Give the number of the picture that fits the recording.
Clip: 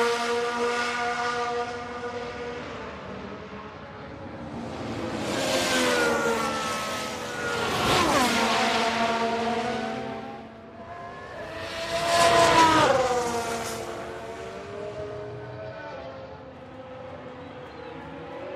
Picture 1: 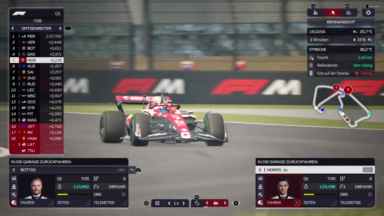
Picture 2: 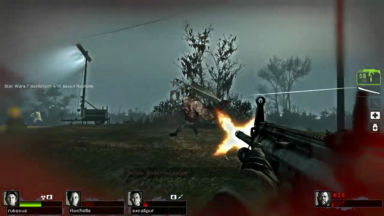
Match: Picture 1